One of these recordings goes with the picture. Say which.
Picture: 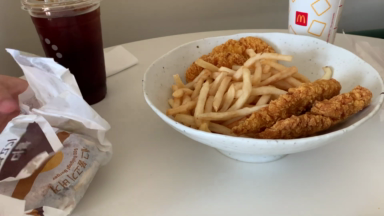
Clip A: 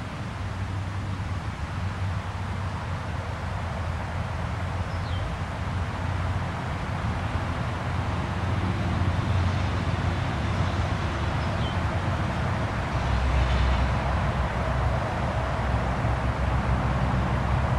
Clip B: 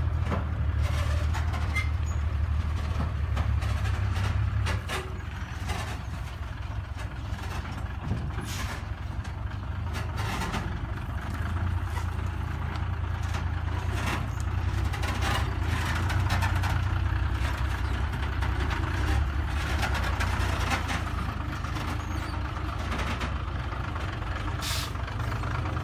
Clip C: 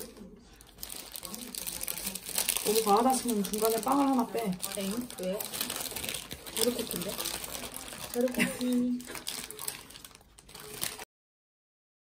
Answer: C